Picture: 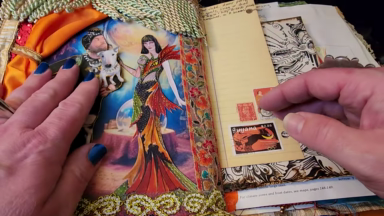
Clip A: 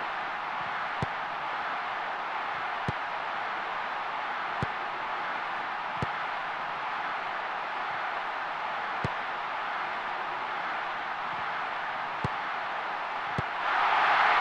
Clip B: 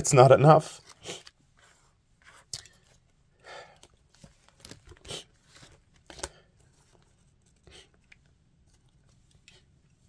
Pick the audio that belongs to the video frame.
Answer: B